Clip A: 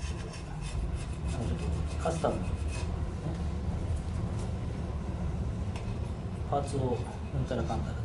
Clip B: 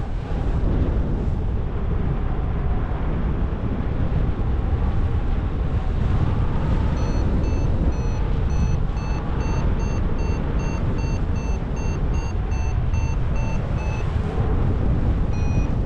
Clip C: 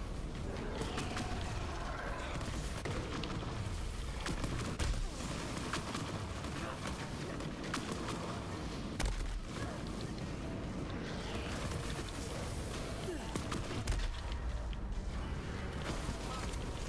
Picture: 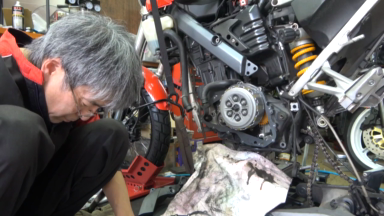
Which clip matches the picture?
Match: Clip A